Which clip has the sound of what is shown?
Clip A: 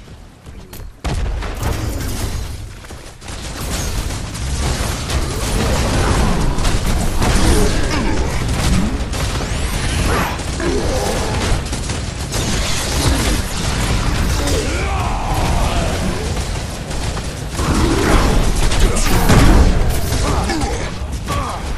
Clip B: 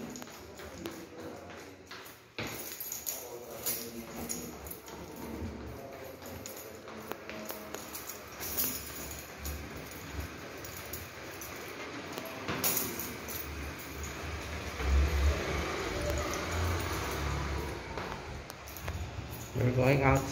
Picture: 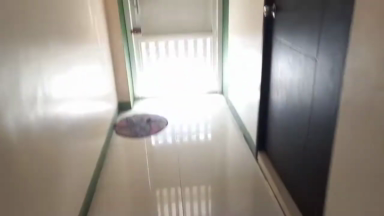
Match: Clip B